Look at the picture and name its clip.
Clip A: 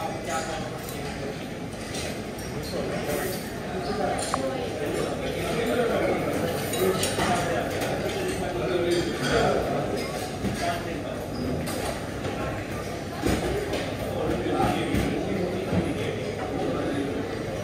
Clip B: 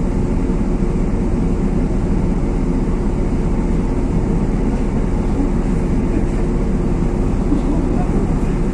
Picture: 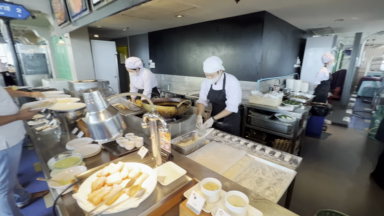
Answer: A